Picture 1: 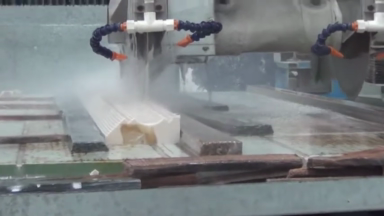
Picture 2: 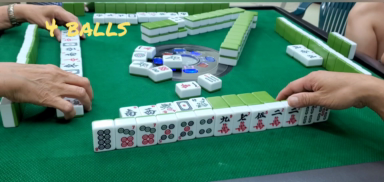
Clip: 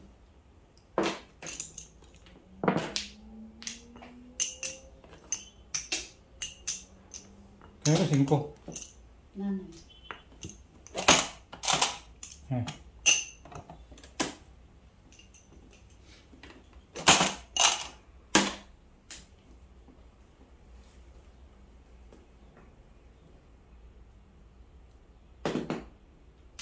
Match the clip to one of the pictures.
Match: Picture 2